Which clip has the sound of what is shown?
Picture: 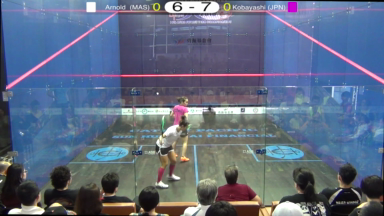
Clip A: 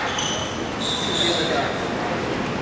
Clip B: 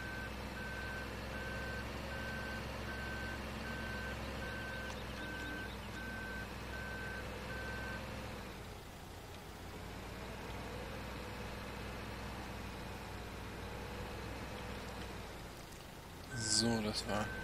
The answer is A